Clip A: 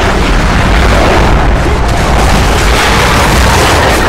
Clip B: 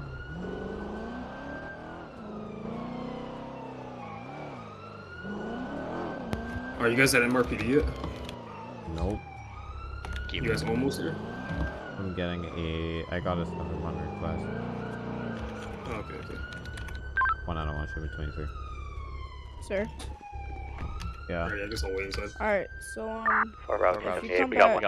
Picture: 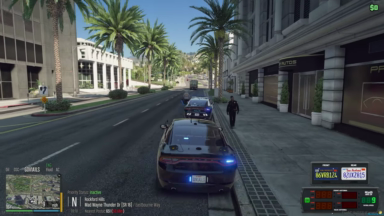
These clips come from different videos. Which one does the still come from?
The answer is B